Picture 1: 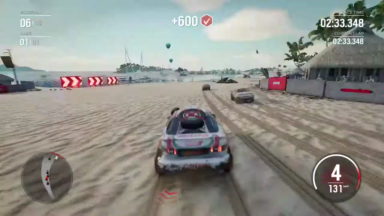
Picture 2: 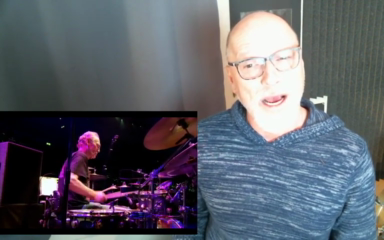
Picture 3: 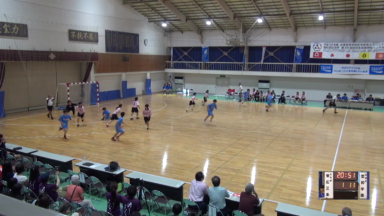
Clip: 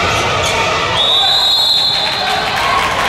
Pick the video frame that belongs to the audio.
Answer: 3